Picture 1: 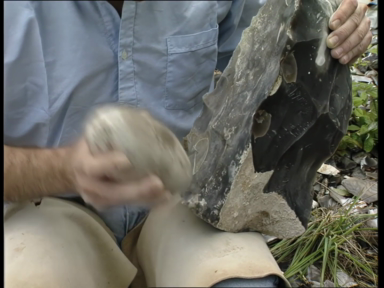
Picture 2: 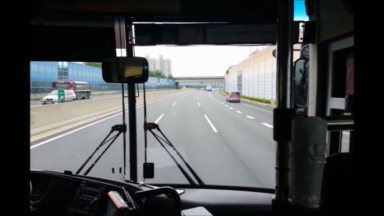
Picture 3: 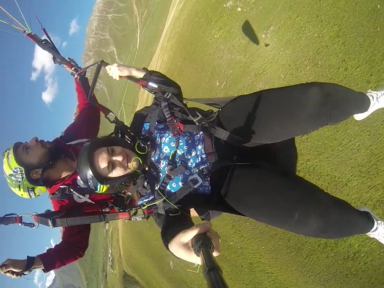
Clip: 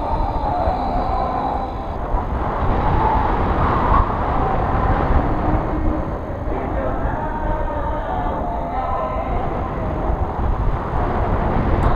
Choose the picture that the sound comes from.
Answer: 3